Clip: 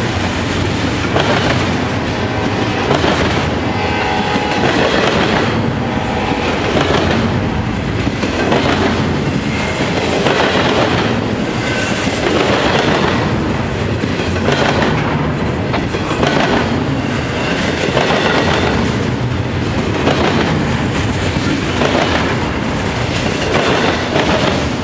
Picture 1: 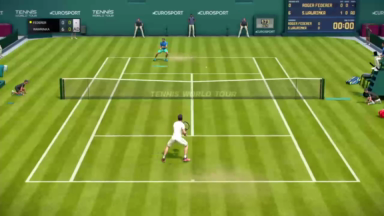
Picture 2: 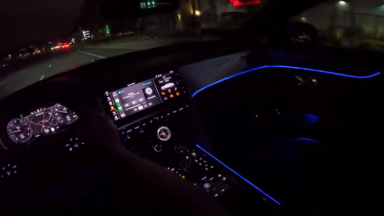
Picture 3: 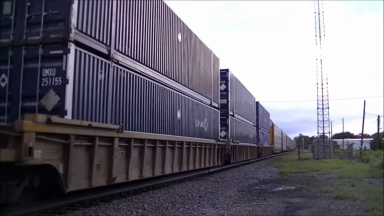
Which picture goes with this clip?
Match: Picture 3